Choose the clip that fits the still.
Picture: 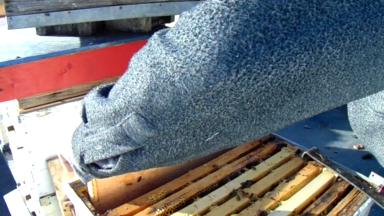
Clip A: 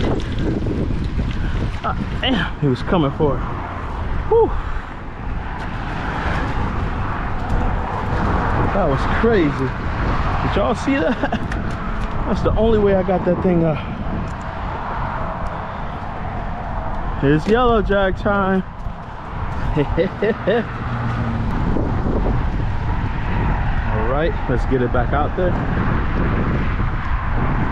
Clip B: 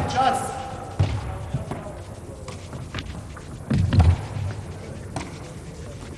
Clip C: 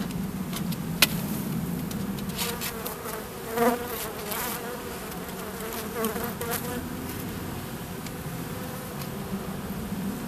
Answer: C